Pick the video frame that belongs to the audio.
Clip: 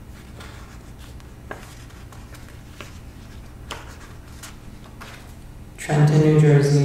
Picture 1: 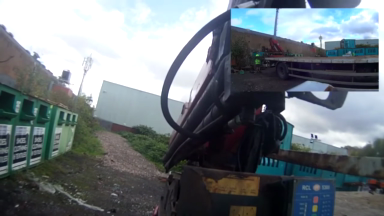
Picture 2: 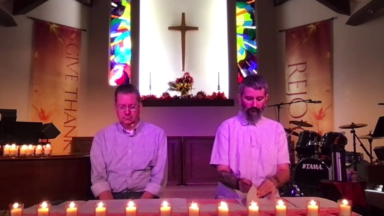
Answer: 2